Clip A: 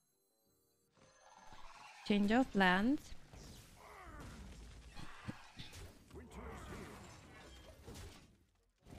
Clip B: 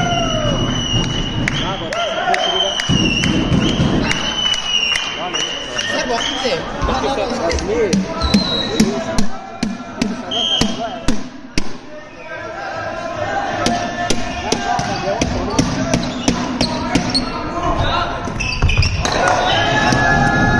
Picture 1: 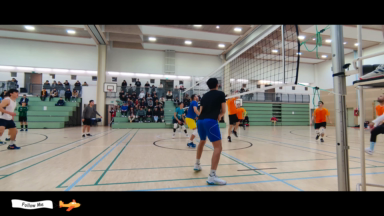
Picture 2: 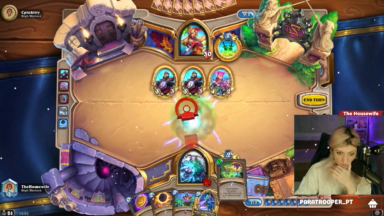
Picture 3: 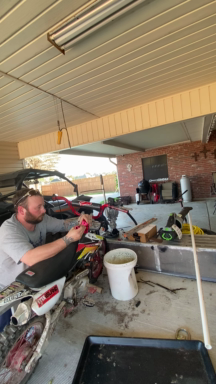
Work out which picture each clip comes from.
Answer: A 2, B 1